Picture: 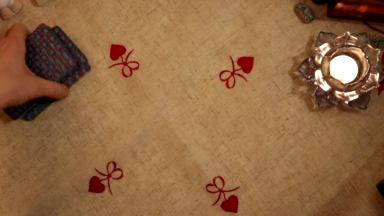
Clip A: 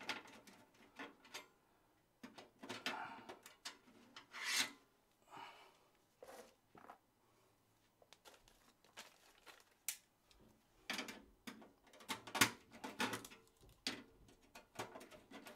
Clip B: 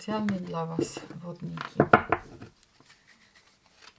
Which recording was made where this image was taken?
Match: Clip B